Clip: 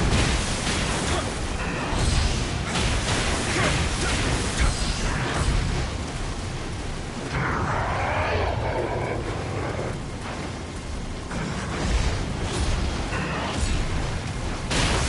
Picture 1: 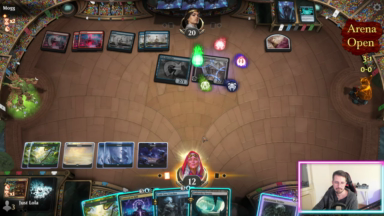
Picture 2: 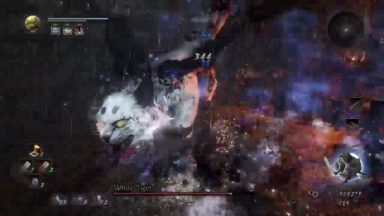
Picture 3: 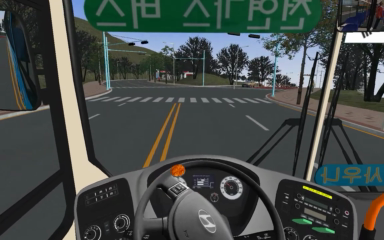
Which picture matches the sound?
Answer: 2